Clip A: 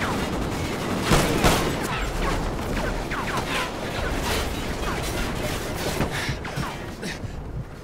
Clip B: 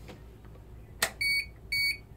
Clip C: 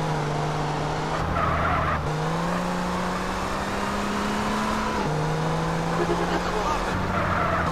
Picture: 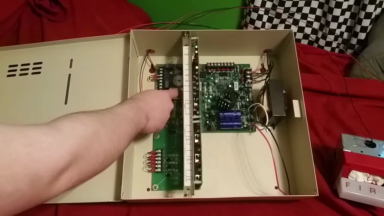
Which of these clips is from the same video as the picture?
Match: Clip B